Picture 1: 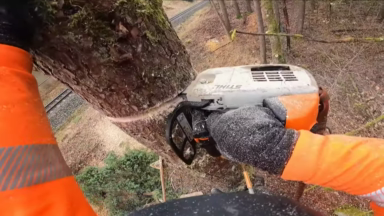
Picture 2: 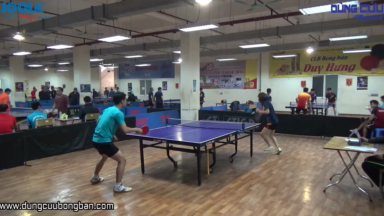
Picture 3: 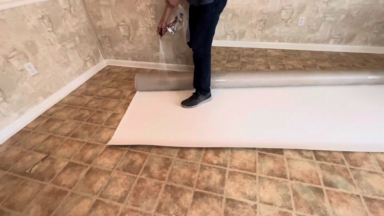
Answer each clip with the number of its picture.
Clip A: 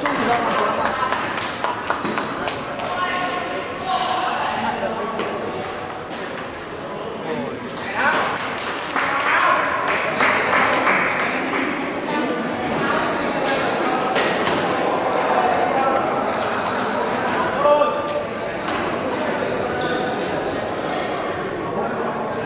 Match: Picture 2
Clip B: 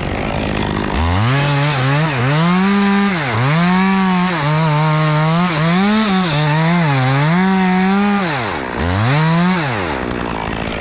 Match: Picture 1